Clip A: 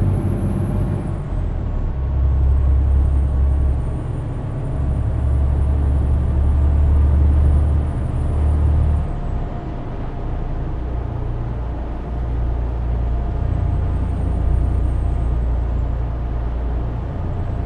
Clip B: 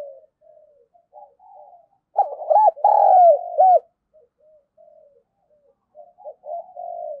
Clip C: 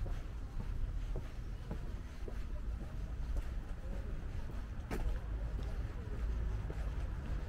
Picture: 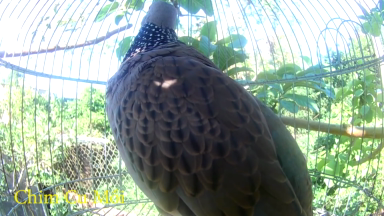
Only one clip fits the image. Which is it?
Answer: B